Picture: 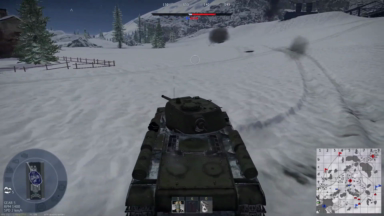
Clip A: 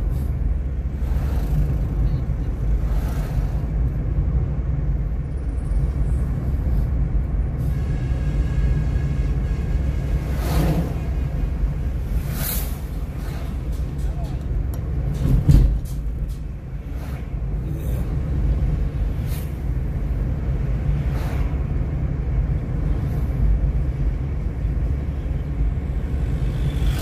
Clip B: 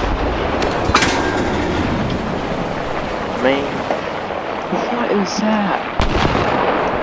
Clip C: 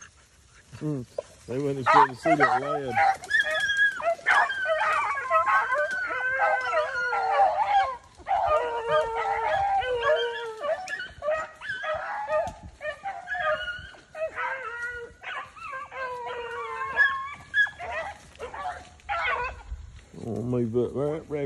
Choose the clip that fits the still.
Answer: B